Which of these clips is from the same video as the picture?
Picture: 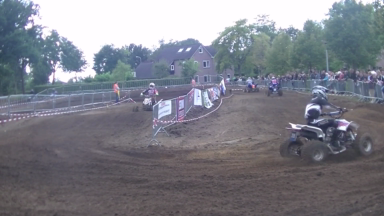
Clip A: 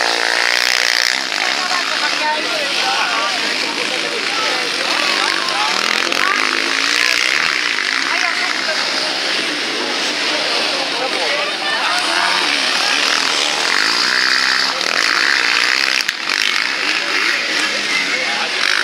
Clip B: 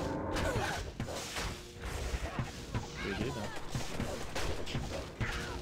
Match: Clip A